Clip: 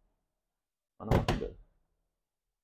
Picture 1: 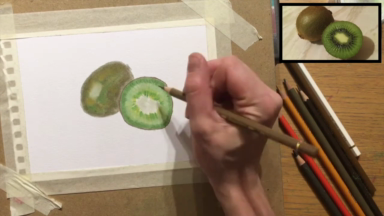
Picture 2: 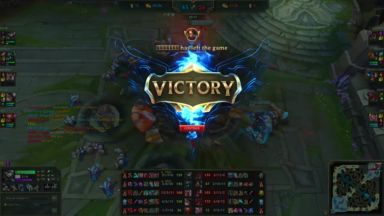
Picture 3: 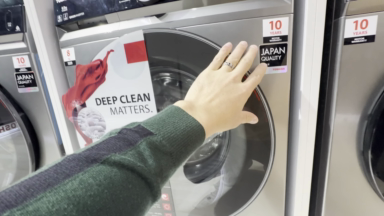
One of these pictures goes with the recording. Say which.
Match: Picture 3